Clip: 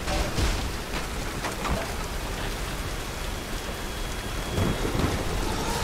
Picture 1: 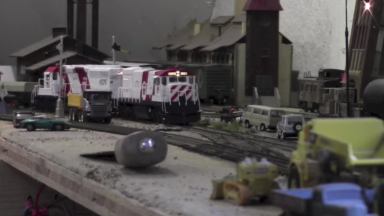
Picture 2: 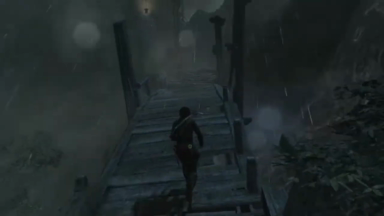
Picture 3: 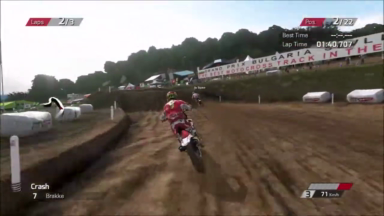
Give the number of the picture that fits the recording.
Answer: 2